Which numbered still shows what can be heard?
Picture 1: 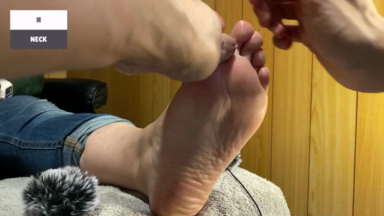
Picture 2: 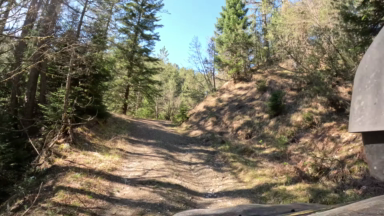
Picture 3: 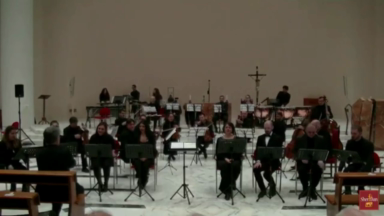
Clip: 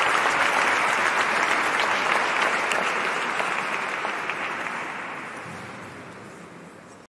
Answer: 3